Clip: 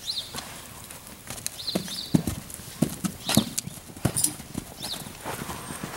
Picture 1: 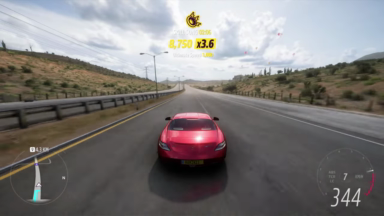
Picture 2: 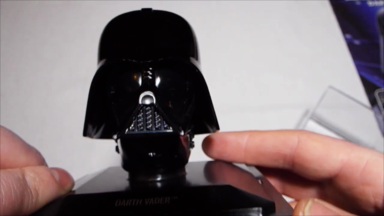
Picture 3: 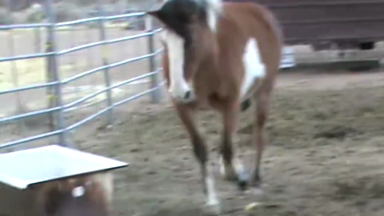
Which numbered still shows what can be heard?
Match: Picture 3